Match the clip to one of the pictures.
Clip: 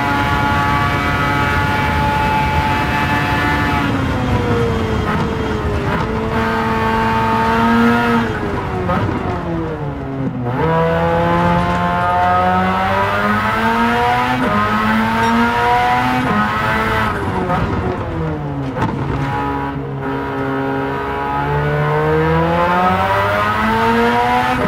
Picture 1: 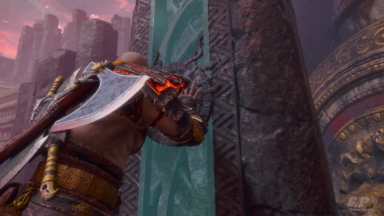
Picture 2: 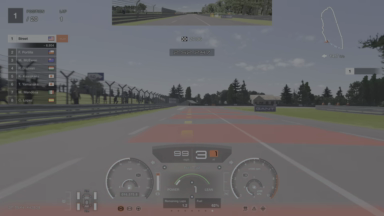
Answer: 2